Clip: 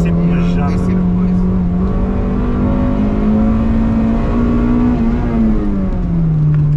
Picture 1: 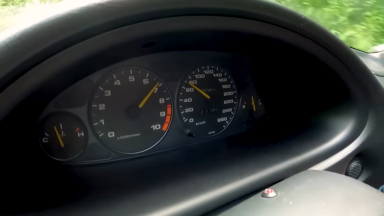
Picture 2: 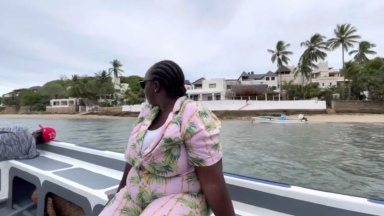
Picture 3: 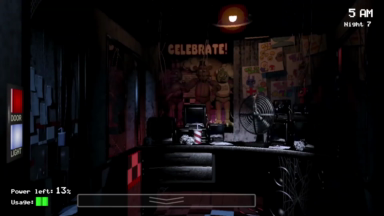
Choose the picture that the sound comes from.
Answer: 1